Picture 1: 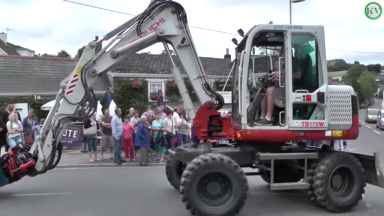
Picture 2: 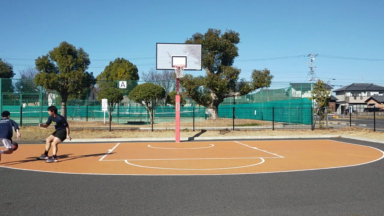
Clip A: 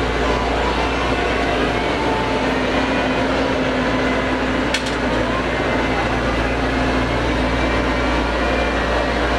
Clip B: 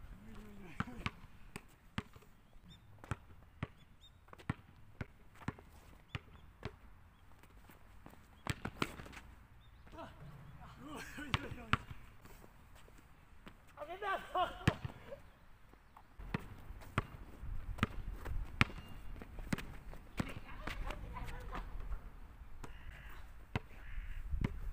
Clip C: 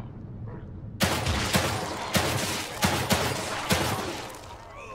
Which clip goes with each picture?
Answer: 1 A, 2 B